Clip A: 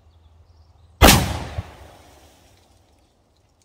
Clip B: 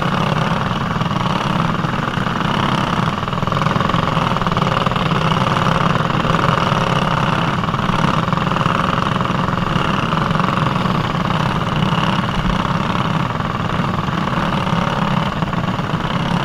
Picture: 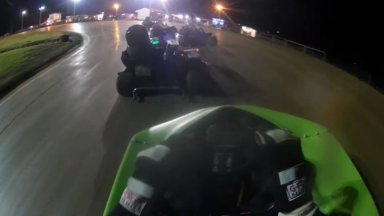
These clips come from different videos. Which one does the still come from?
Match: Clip B